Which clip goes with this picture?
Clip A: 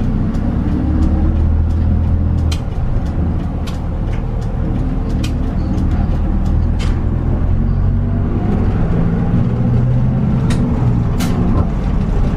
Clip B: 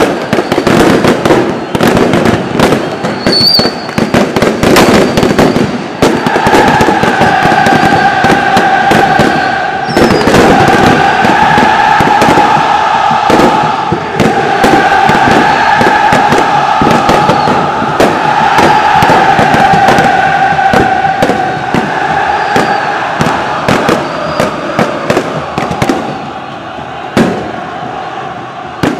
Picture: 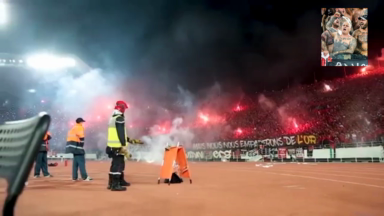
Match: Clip B